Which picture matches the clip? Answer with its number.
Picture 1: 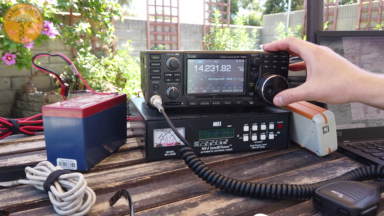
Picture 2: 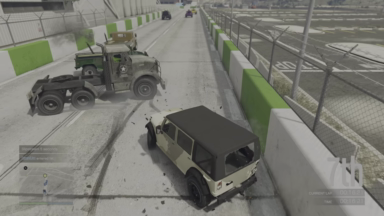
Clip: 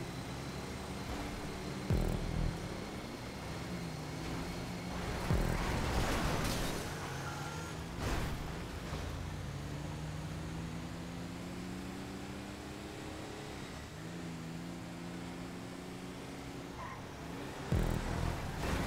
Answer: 2